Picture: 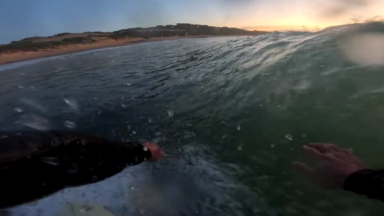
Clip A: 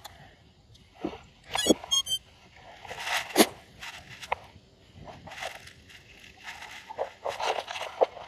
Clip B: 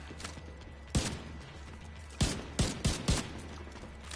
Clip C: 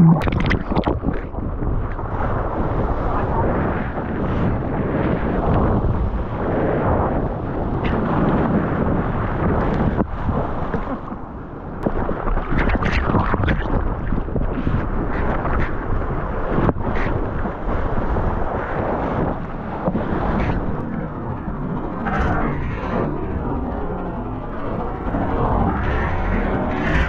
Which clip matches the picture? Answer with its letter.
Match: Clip C